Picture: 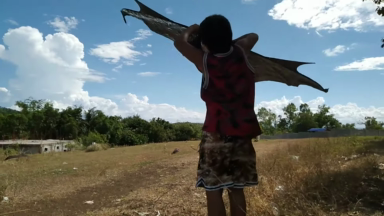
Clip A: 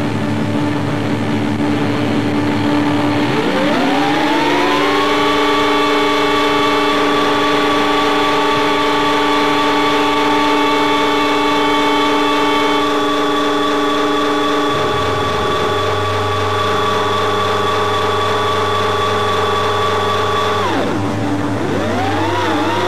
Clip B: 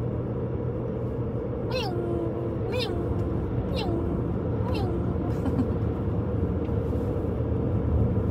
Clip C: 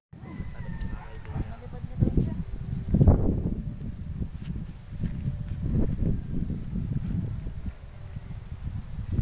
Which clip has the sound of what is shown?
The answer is C